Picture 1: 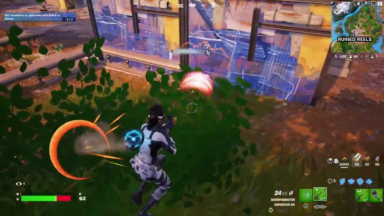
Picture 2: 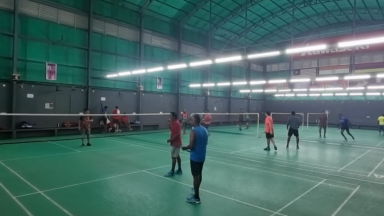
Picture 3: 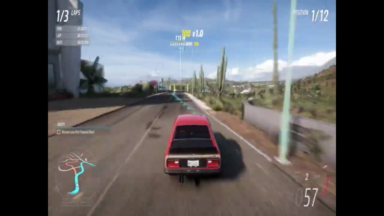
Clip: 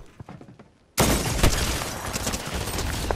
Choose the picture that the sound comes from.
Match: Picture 1